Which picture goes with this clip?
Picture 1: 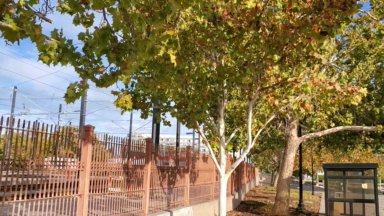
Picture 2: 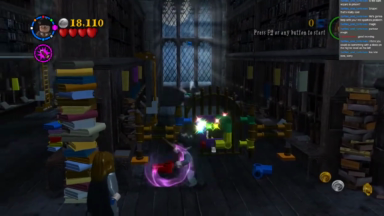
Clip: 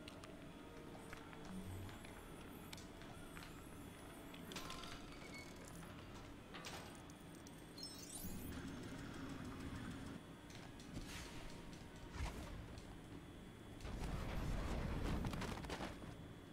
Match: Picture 2